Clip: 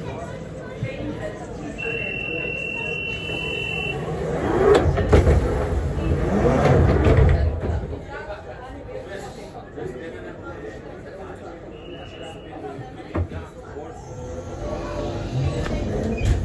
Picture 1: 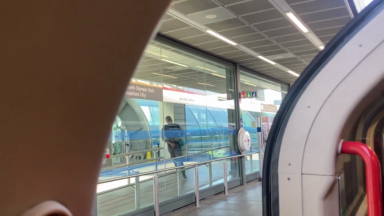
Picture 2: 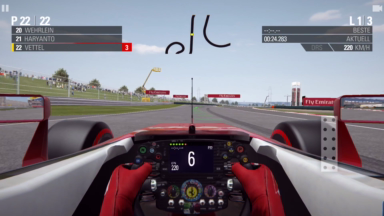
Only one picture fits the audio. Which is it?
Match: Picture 1